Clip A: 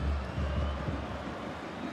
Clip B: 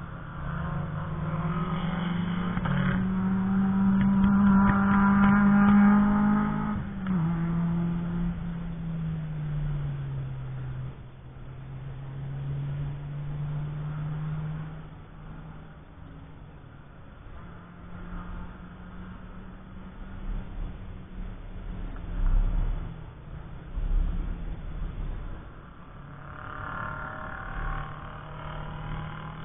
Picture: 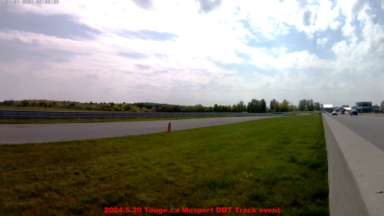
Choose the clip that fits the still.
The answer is B